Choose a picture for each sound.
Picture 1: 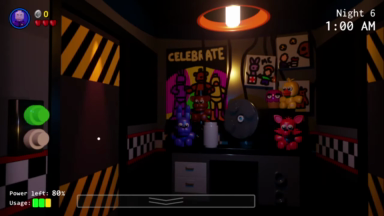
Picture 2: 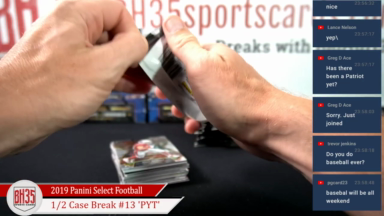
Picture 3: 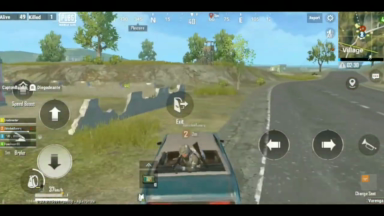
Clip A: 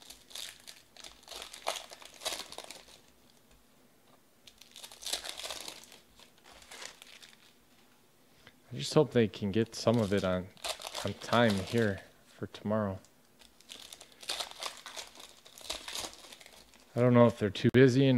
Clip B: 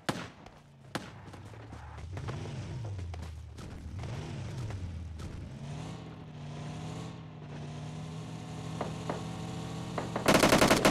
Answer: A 2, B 3